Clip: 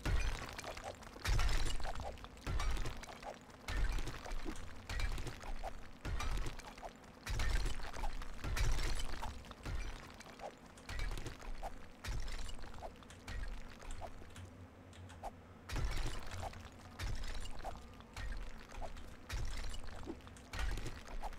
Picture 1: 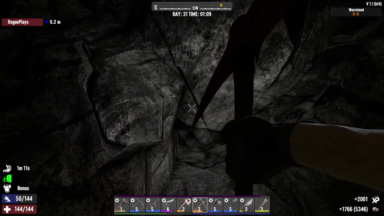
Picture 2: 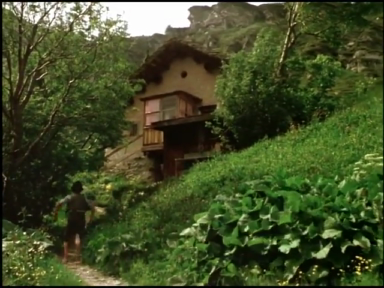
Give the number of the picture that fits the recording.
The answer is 1